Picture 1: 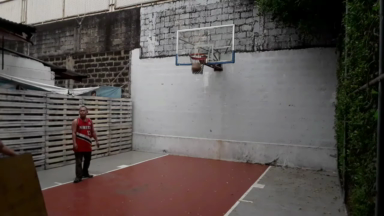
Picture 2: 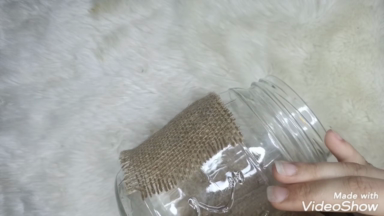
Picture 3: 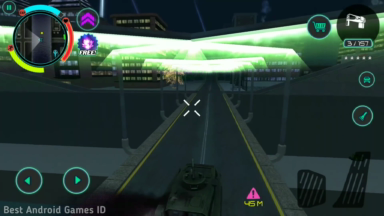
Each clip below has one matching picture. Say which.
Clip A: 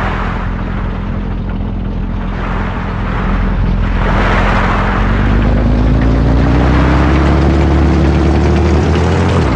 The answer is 3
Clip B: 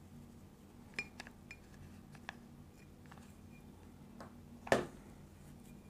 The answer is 2